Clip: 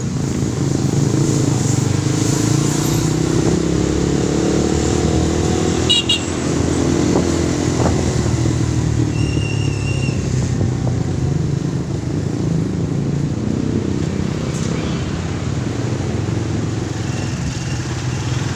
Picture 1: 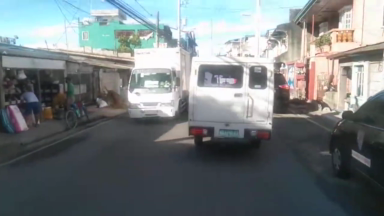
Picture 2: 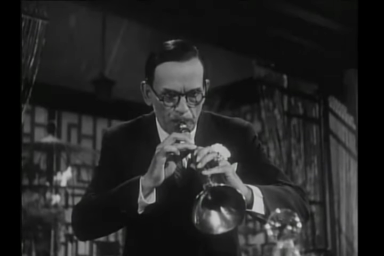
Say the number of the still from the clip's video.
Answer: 1